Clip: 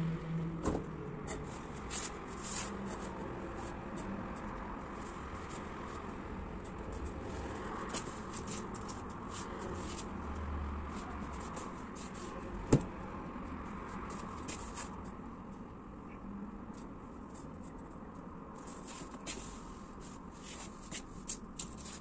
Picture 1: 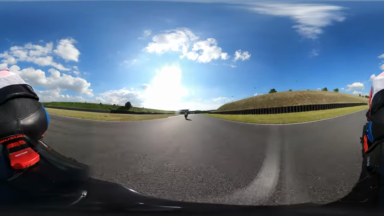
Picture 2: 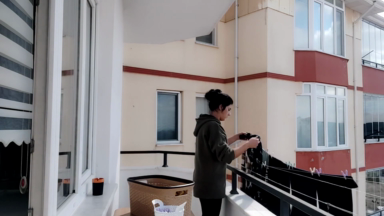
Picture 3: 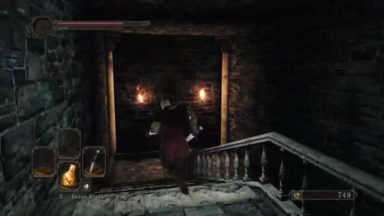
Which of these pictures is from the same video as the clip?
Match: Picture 2